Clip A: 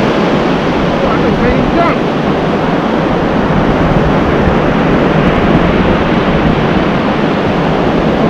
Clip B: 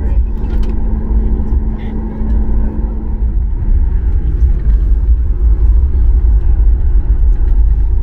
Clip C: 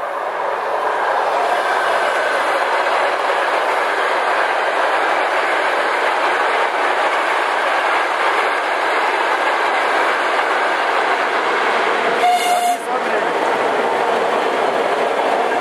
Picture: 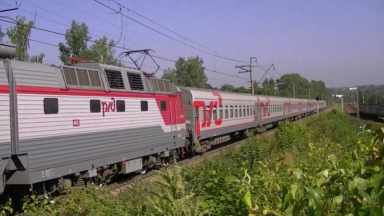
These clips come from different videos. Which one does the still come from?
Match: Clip C